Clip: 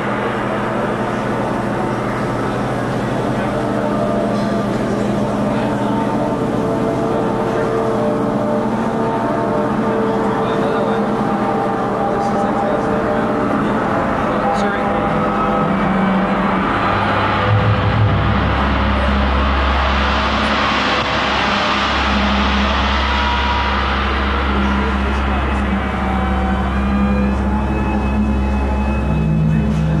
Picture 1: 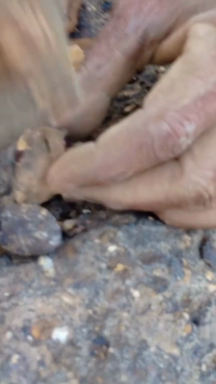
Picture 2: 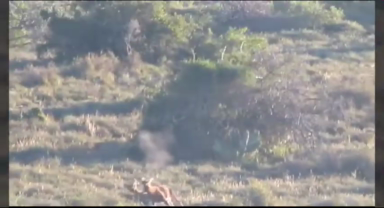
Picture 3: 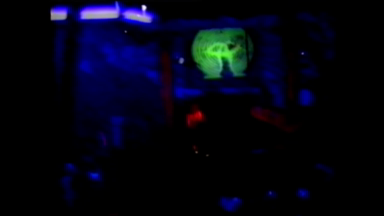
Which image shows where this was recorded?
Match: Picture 3